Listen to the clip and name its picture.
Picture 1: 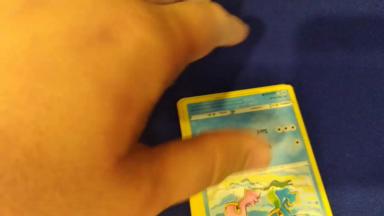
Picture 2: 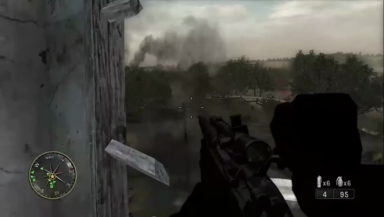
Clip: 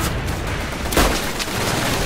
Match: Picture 2